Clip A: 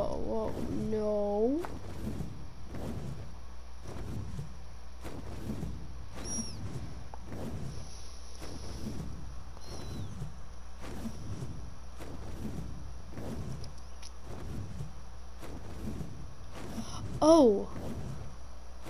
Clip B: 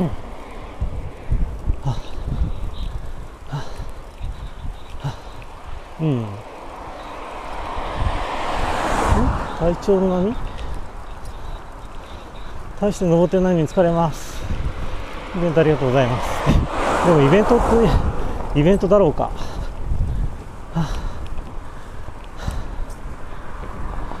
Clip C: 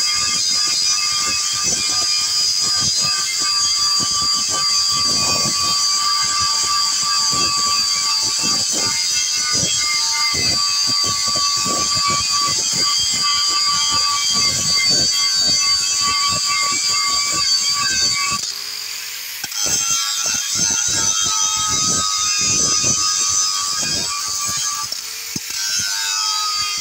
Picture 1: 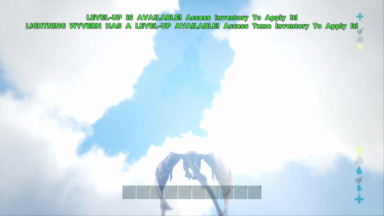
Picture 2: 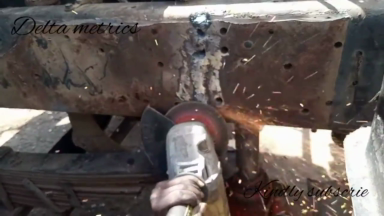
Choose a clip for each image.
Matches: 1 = A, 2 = C